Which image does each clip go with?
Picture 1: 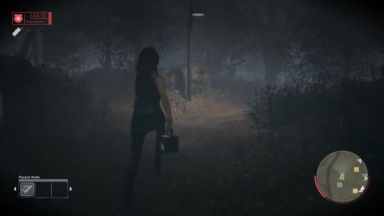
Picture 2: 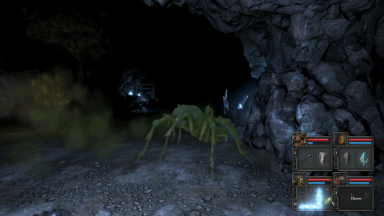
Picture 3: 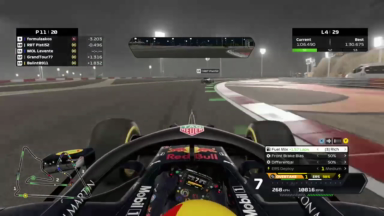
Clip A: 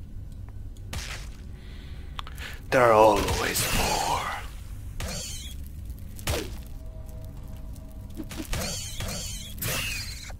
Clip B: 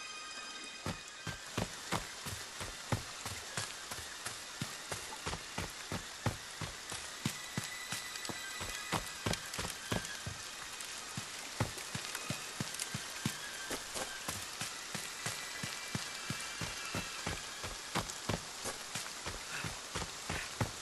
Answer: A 2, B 1